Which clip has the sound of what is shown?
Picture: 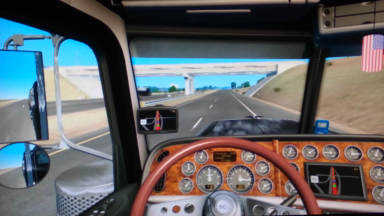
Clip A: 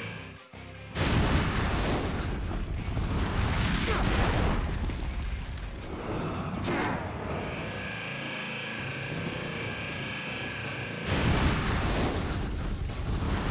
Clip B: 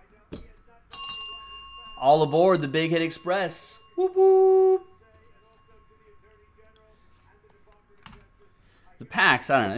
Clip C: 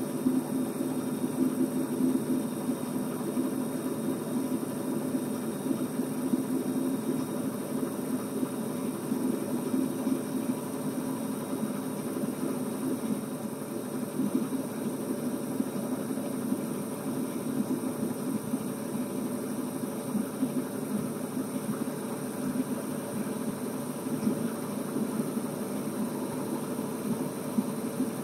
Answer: C